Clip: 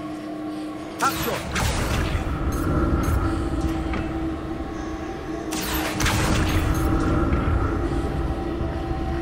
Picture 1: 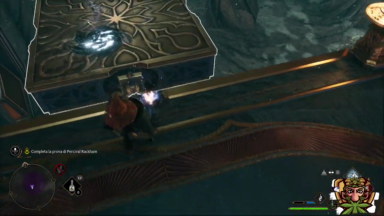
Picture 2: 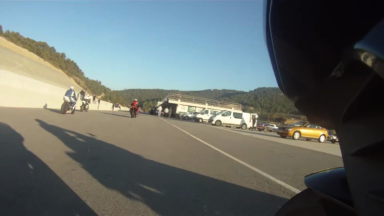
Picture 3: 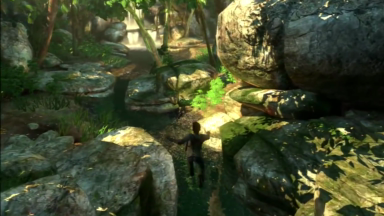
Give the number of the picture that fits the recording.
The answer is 1